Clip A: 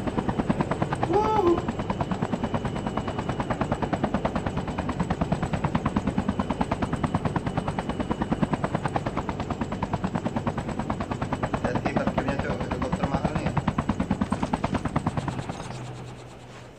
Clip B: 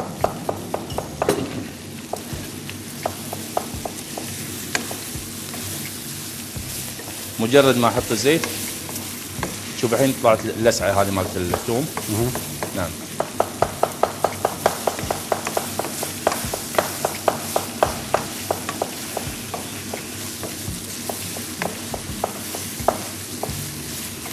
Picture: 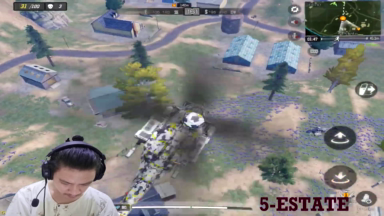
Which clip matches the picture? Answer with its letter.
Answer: A